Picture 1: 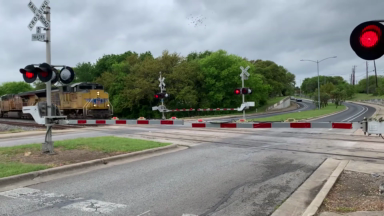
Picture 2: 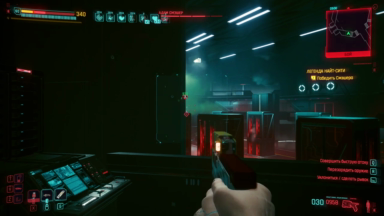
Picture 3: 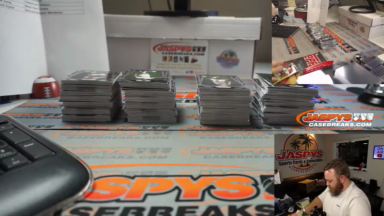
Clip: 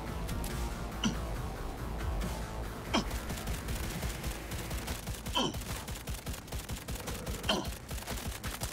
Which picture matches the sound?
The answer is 2